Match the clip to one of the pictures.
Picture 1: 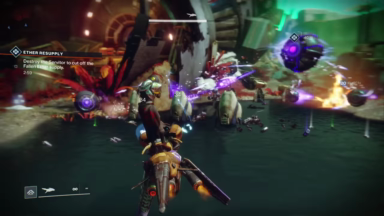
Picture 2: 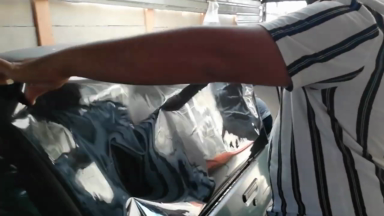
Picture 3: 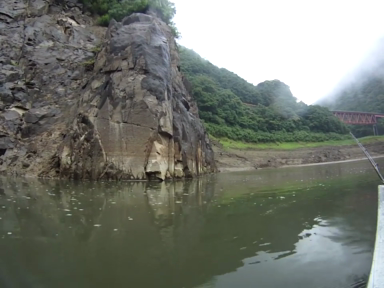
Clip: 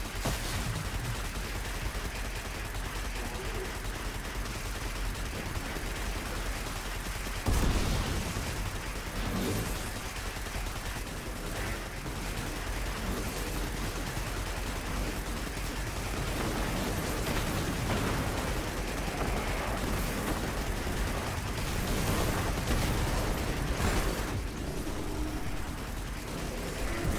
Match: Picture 1